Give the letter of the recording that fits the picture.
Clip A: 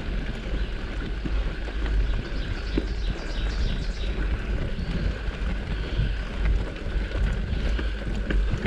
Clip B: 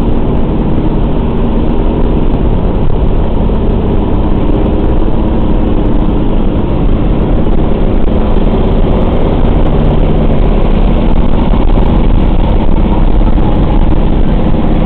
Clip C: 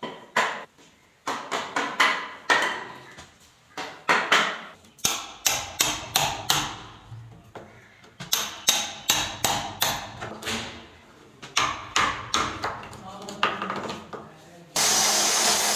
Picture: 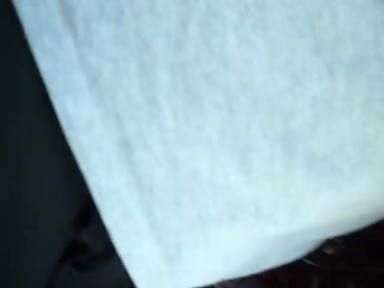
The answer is B